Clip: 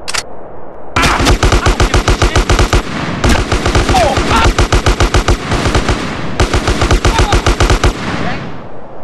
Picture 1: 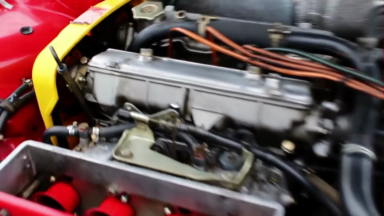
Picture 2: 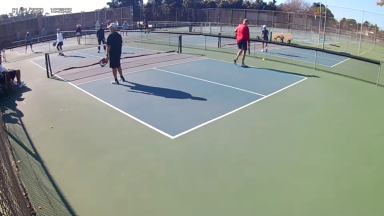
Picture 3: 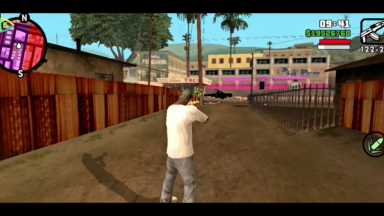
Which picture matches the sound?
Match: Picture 3